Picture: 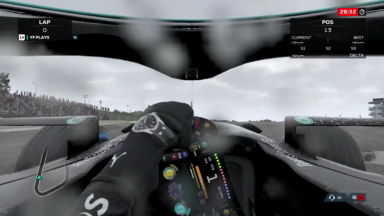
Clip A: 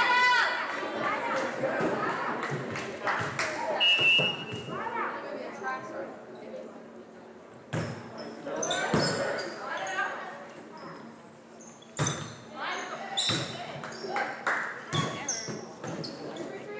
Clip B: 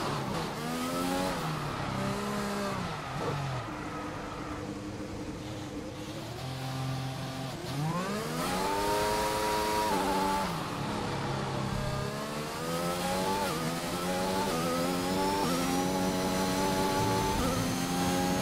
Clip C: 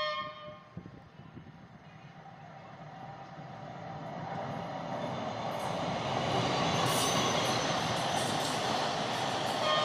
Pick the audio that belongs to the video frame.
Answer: B